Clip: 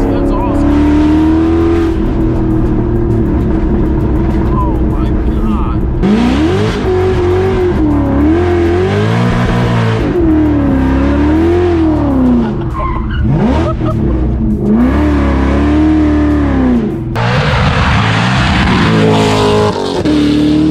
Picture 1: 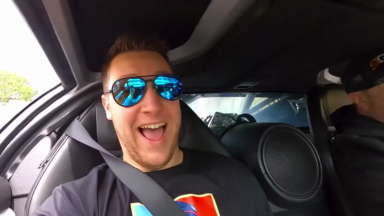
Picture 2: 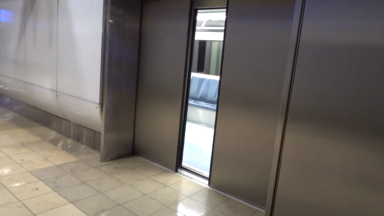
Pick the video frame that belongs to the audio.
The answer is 1